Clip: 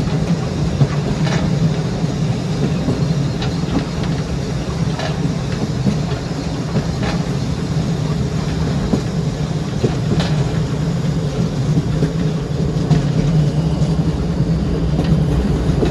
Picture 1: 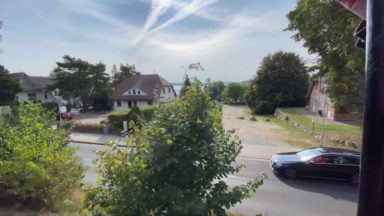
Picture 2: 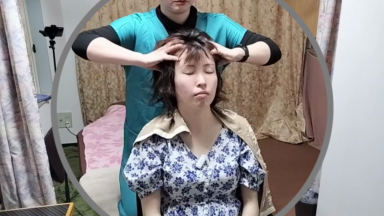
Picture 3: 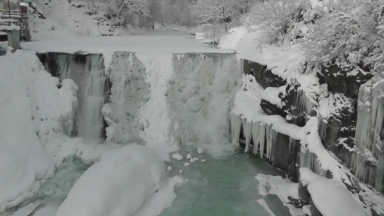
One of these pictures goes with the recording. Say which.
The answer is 1